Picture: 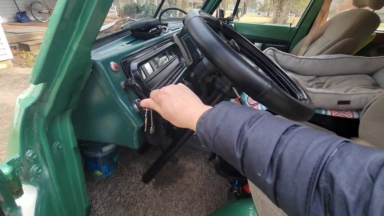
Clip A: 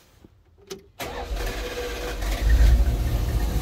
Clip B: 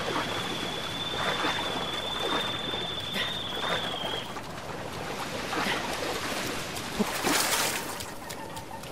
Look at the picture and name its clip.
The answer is A